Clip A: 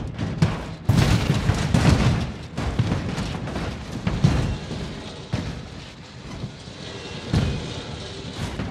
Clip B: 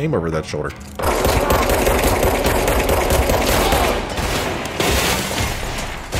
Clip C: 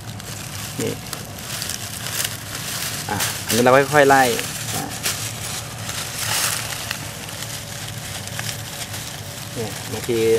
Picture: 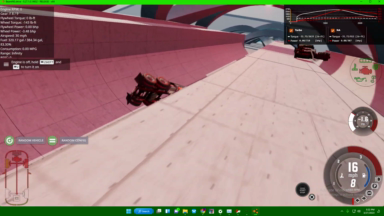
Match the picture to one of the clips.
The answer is A